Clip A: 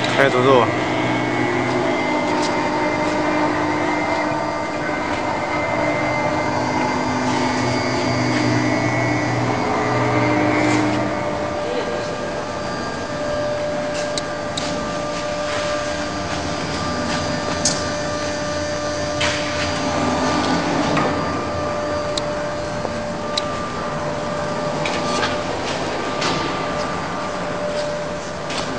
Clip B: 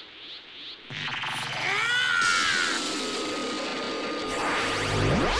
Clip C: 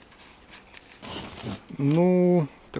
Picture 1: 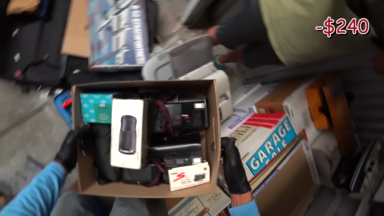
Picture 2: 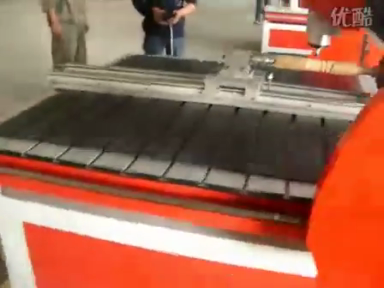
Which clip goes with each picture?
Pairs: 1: C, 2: A